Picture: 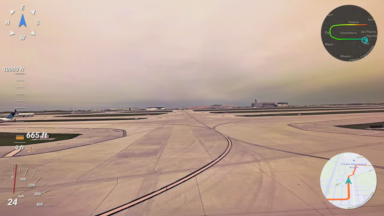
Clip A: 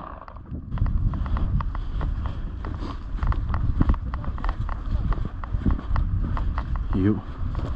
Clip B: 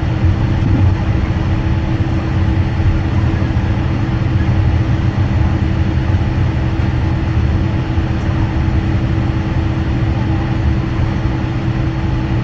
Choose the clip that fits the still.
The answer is B